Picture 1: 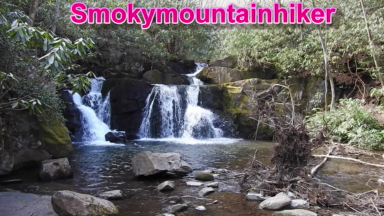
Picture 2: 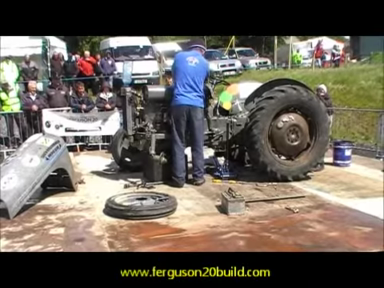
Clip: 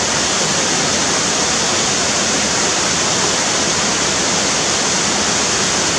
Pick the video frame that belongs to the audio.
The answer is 1